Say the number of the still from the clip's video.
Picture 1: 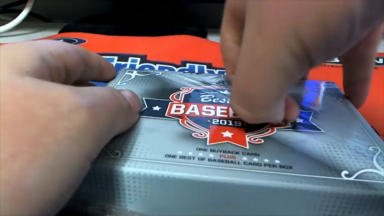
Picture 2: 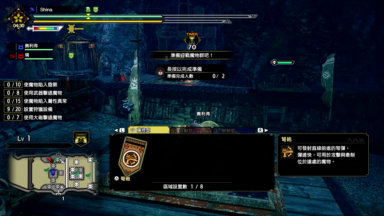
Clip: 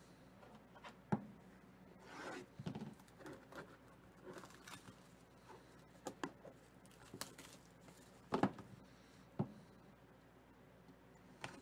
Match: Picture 1